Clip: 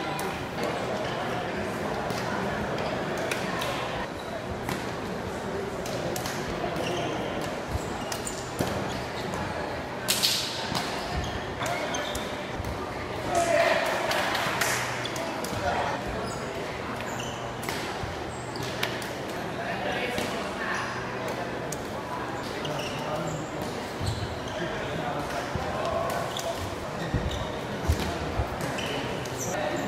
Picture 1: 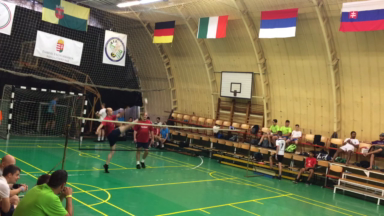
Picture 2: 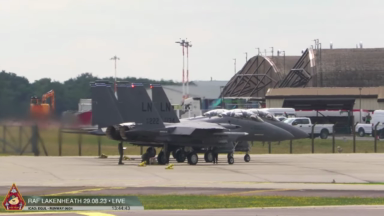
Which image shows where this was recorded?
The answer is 1